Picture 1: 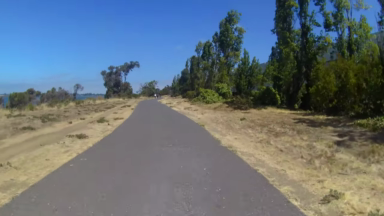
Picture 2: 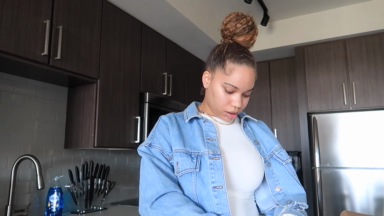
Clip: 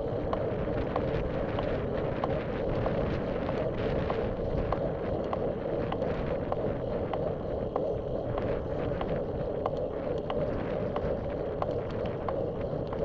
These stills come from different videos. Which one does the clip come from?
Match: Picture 1